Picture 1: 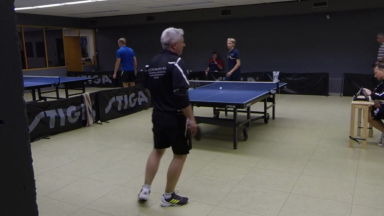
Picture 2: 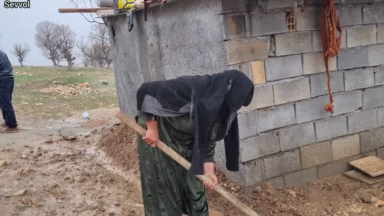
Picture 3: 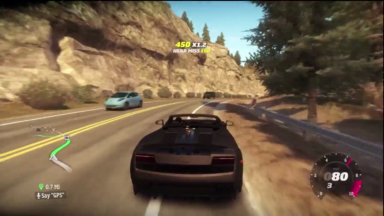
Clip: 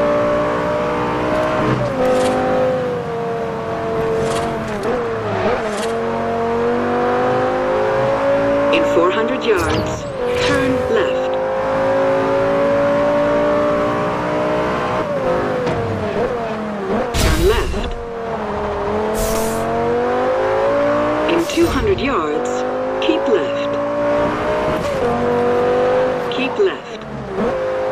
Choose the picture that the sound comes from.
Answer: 3